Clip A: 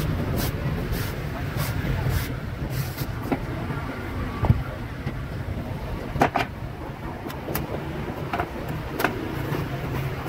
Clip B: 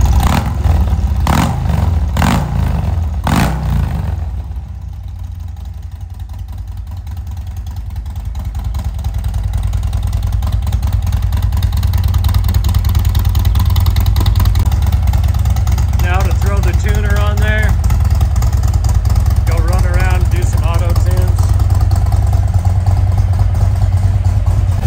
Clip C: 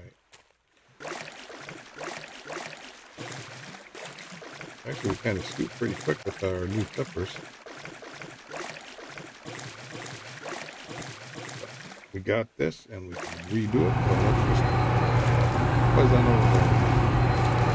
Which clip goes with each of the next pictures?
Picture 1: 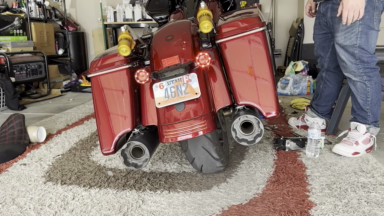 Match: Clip B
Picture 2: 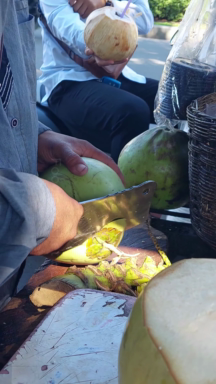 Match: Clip A